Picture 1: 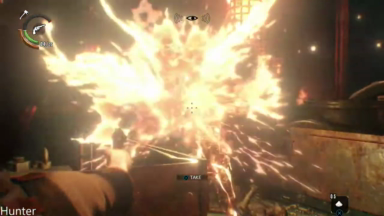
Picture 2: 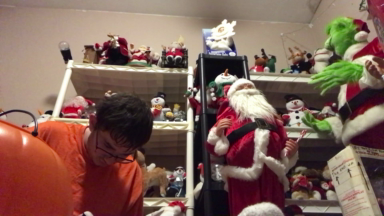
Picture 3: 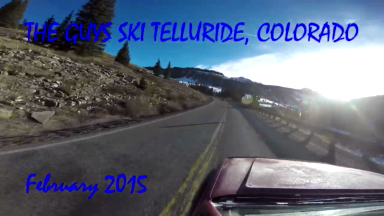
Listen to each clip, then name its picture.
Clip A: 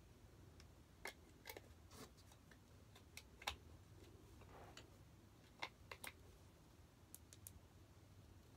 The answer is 2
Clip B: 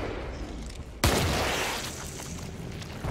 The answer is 1